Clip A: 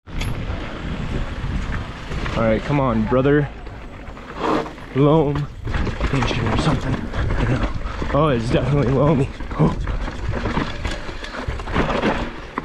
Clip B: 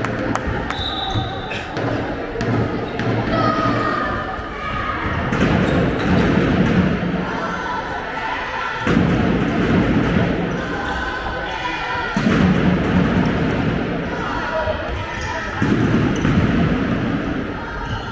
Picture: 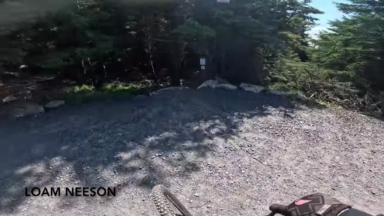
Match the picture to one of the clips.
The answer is A